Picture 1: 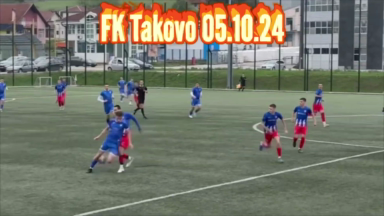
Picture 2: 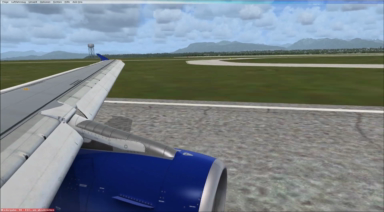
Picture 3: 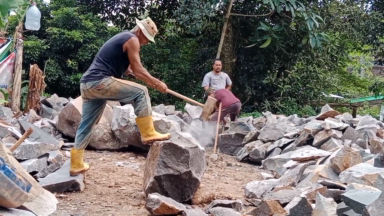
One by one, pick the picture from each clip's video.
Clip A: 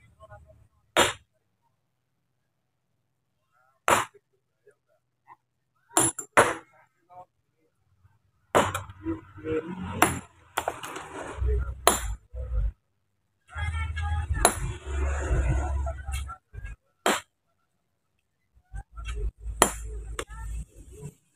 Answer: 3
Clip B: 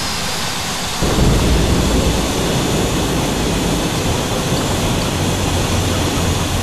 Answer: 2